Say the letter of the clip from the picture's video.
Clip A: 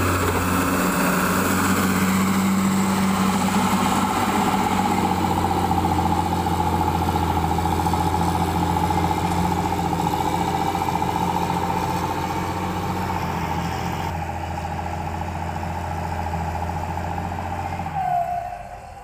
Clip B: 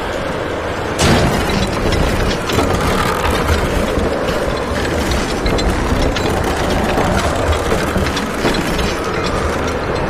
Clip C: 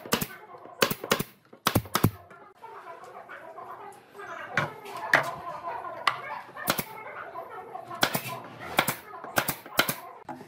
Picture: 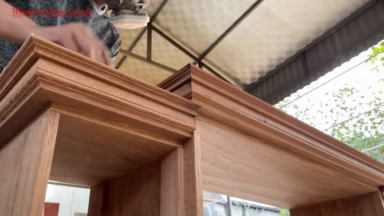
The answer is C